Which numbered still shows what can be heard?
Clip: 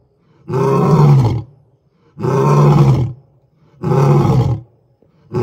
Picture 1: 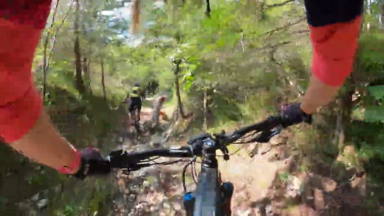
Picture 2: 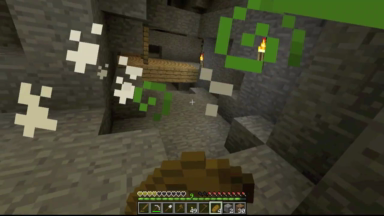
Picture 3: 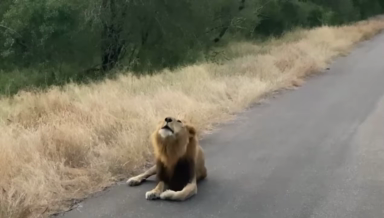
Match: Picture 3